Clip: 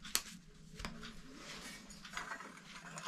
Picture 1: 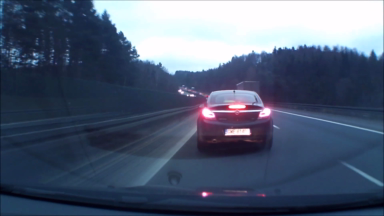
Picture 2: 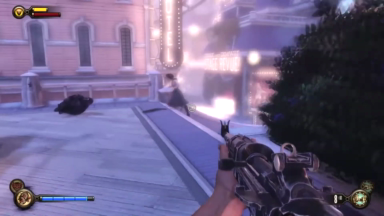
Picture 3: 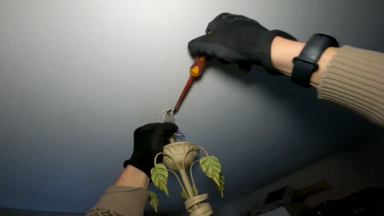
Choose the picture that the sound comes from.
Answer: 3